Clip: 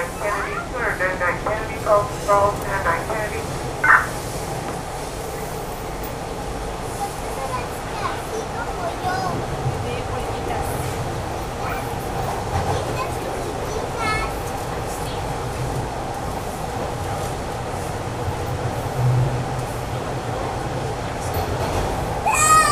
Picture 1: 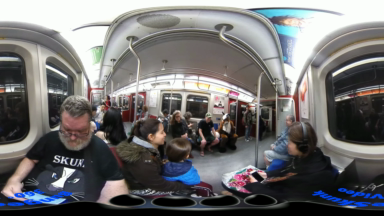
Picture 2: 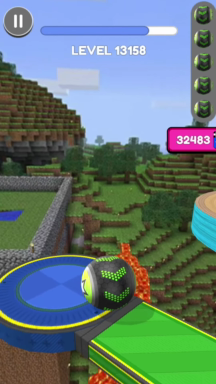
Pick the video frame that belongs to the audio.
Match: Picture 1